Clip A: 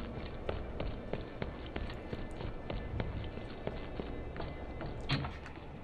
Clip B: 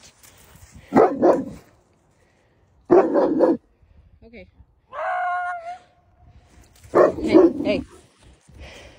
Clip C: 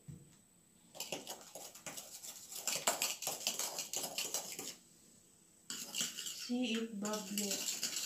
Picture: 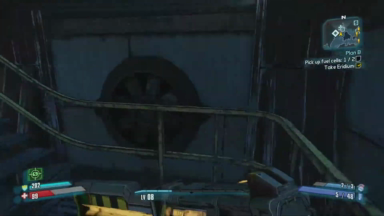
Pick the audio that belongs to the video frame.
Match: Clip A